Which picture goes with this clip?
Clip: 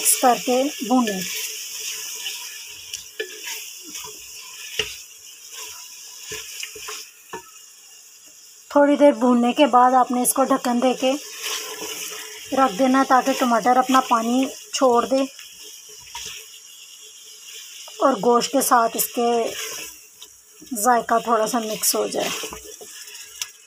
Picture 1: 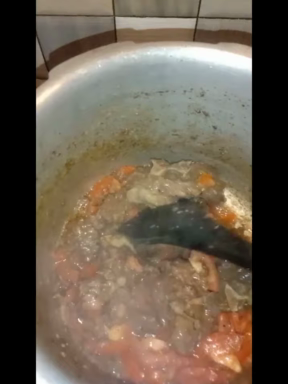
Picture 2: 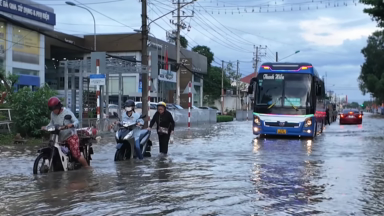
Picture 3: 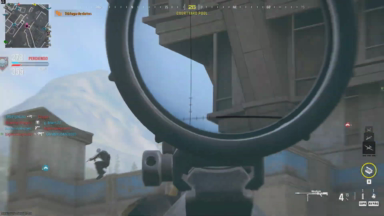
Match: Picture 1